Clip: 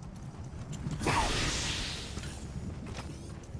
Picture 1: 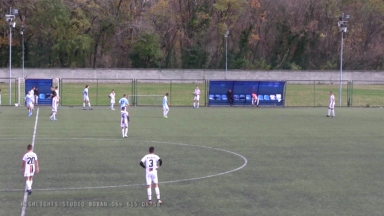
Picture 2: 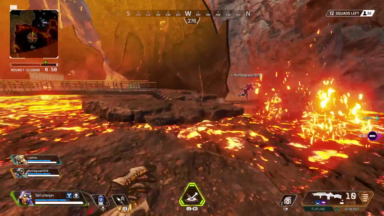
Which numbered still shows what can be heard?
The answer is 2